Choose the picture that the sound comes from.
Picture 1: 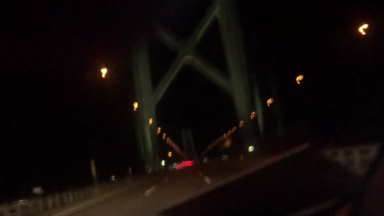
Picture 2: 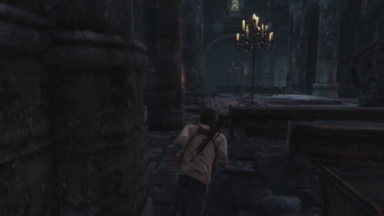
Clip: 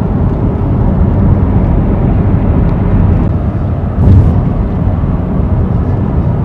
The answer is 1